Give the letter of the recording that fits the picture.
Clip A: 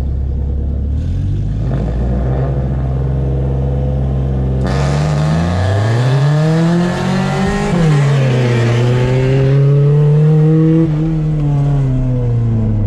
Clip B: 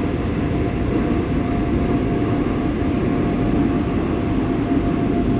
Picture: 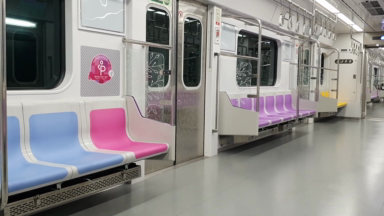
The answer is B